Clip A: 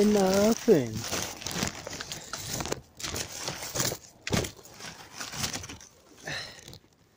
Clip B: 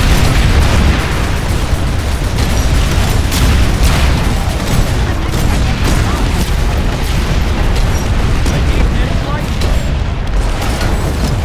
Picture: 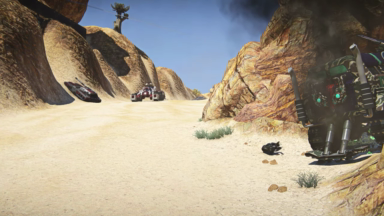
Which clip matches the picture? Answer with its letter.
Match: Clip B